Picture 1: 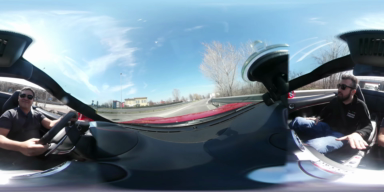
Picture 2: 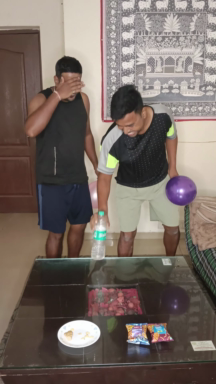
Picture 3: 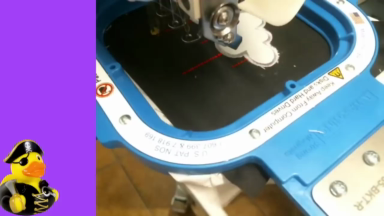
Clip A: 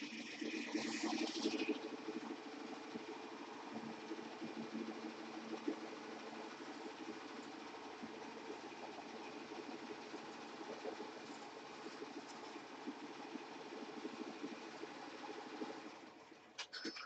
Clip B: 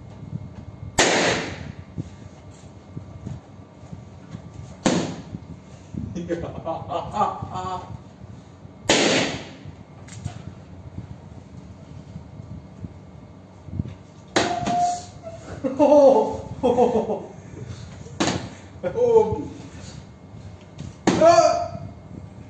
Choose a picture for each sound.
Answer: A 3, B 2